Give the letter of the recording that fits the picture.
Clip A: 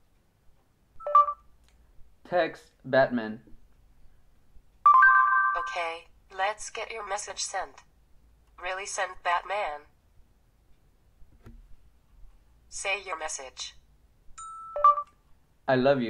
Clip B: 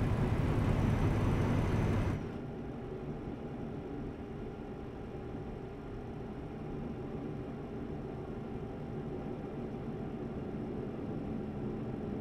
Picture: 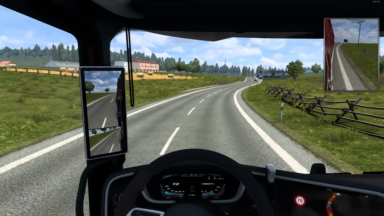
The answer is B